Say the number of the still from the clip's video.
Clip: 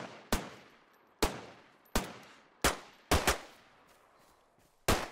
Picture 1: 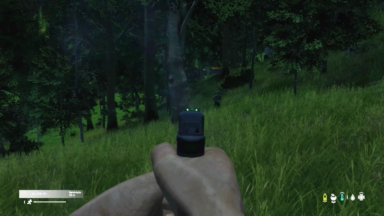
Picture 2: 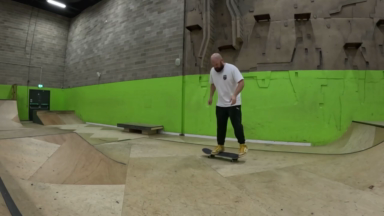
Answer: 1